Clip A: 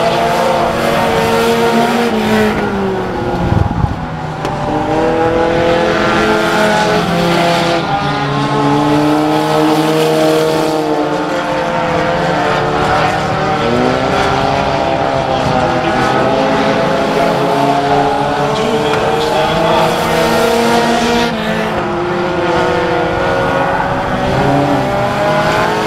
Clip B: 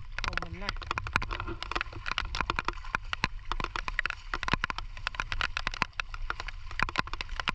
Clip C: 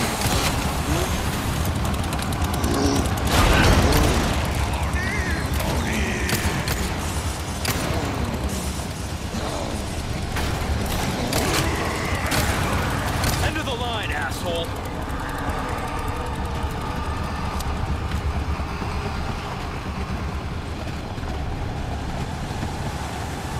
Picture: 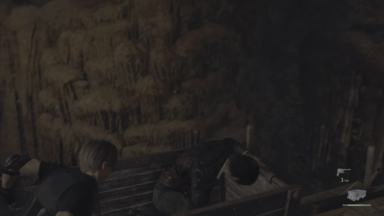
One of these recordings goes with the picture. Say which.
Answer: C